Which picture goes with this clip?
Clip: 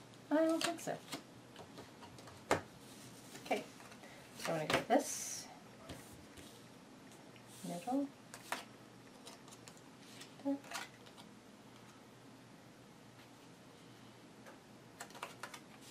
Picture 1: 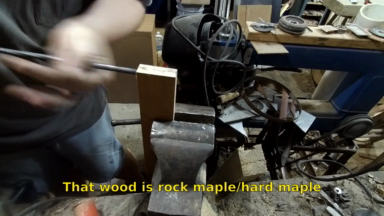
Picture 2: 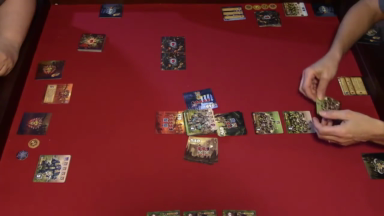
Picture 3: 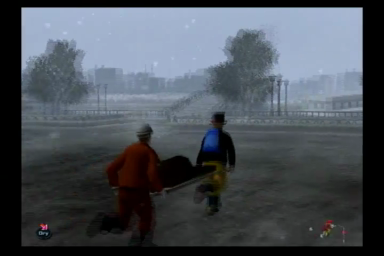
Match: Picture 2